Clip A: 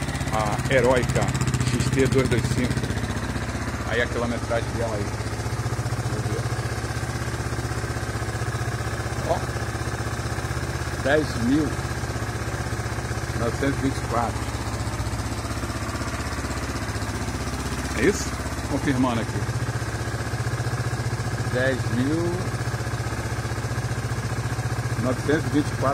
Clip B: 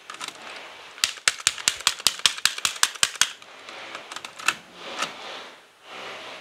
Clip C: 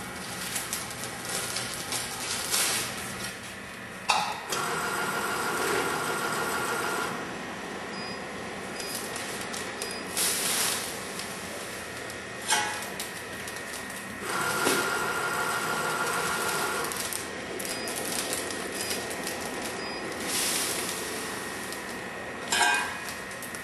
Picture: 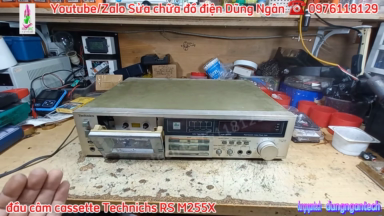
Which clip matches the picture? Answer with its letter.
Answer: B